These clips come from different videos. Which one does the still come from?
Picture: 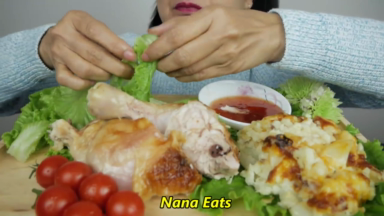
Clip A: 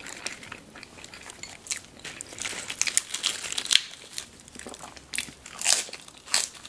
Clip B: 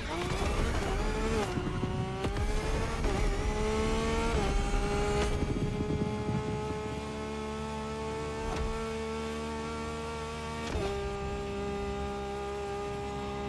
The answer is A